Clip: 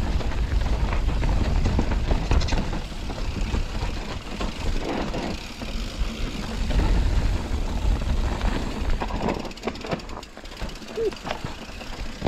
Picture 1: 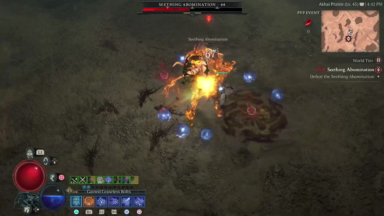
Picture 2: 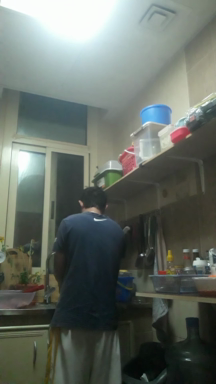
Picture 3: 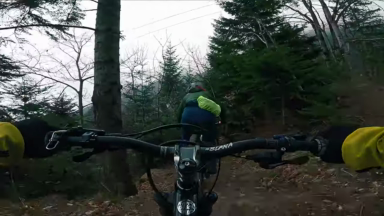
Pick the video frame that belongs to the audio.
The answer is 3